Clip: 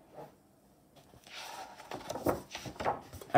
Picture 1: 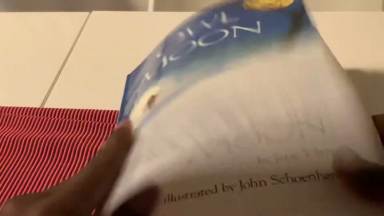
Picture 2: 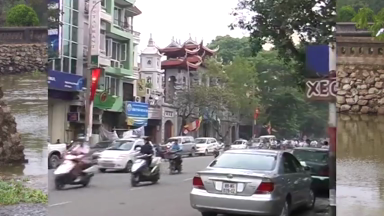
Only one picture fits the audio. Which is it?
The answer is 1